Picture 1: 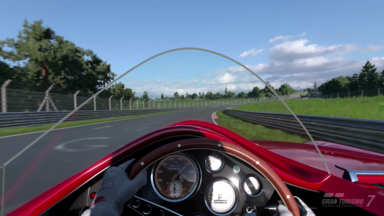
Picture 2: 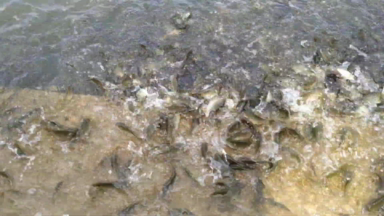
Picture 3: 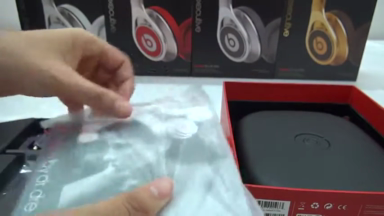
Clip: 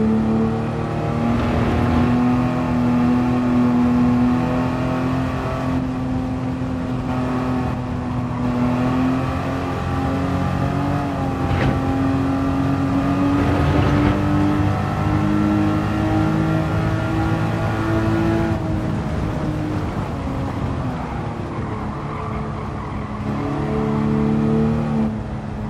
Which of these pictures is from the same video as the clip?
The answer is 1